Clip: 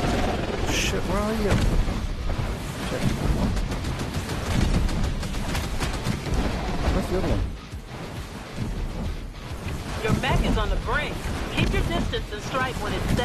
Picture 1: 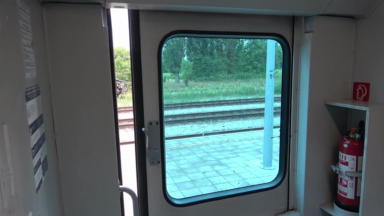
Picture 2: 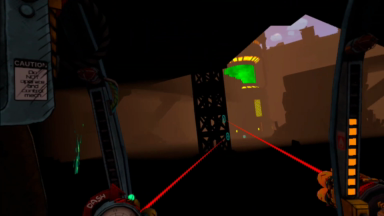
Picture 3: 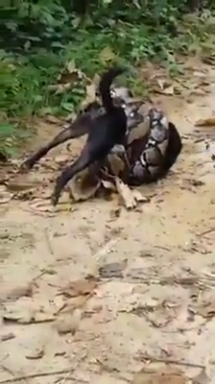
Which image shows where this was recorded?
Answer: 2